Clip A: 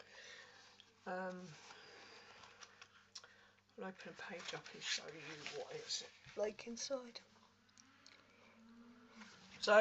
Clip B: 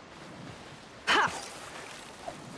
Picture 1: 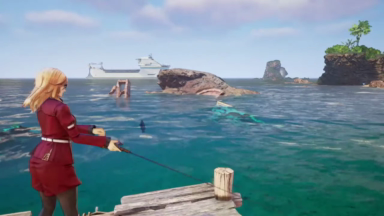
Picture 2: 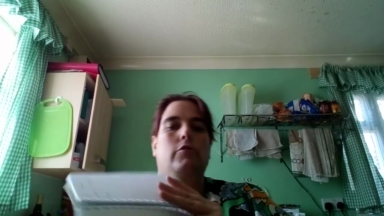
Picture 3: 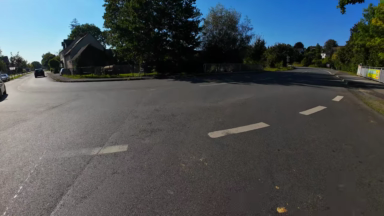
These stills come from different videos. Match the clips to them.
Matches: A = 2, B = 1